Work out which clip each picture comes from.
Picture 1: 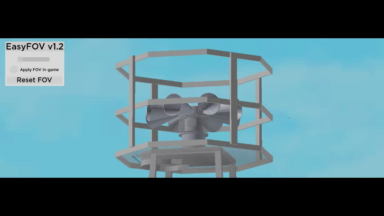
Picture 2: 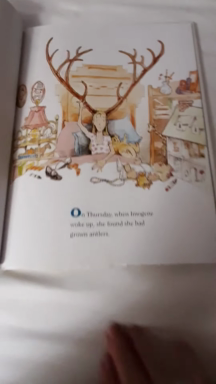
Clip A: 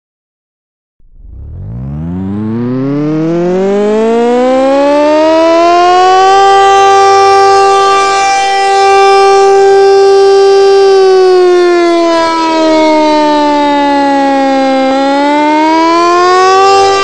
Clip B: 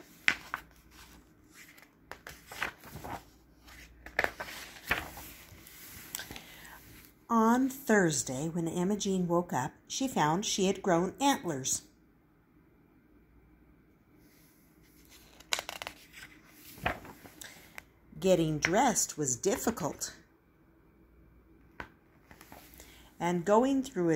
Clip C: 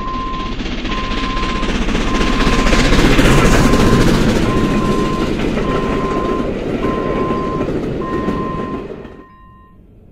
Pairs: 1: A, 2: B